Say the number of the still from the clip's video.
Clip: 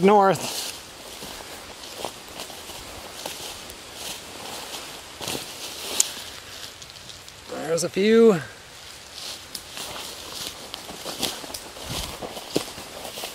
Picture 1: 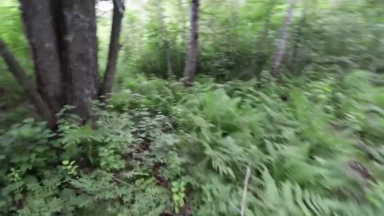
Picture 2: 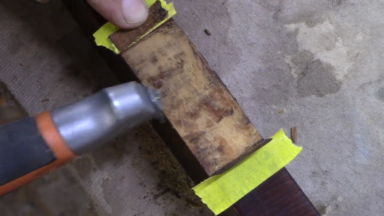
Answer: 1